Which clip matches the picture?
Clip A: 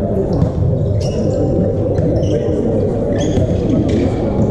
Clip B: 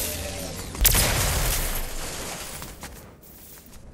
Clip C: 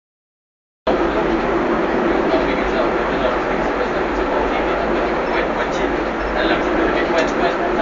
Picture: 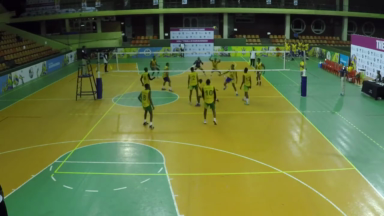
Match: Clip A